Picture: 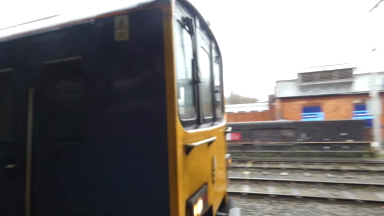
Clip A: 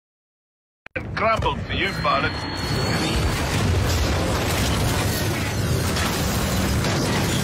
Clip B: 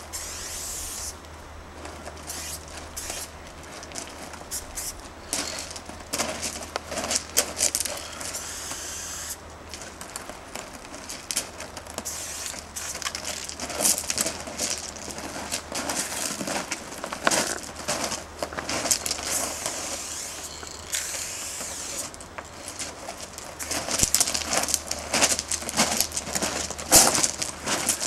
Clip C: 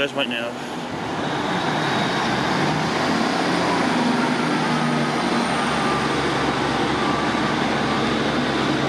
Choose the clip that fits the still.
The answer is C